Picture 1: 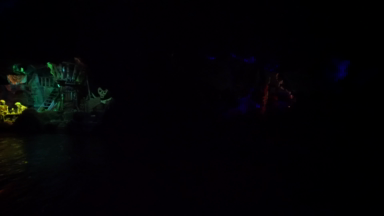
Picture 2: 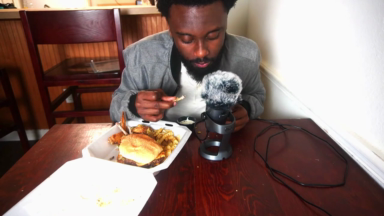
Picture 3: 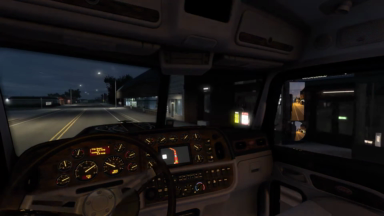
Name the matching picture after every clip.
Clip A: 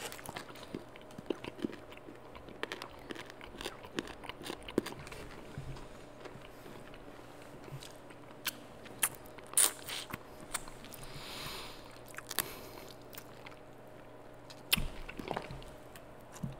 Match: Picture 2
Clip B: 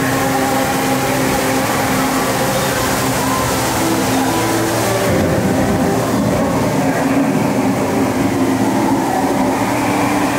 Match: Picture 1